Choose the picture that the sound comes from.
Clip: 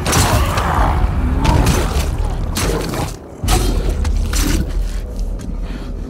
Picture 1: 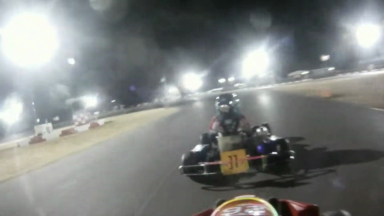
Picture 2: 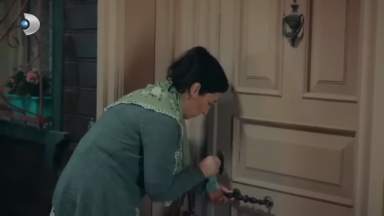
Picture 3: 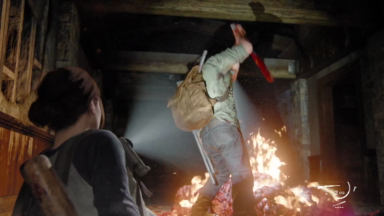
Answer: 3